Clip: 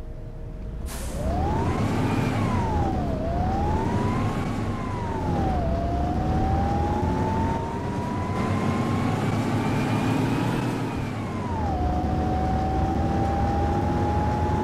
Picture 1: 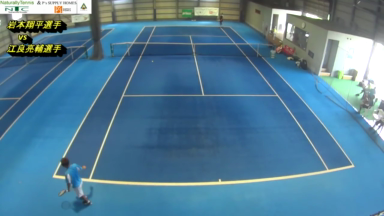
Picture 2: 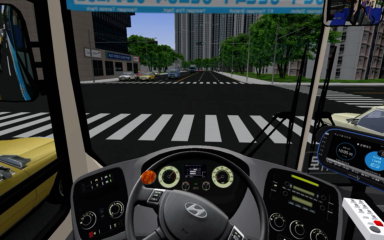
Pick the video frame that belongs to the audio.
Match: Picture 2